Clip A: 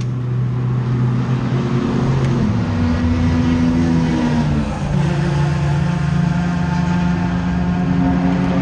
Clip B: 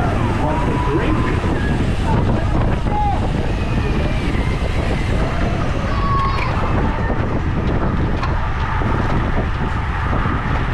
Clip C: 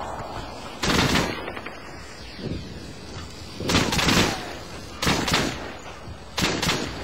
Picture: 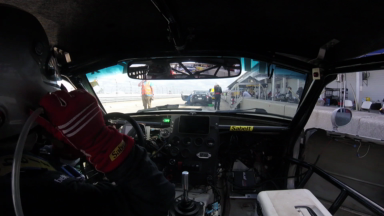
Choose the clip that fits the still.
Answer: A